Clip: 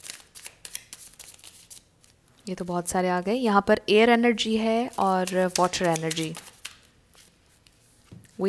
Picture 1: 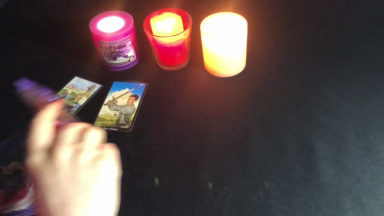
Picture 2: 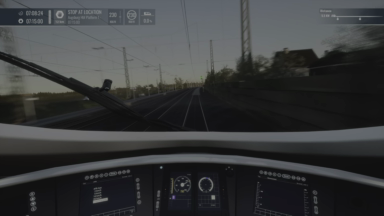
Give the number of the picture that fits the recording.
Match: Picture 1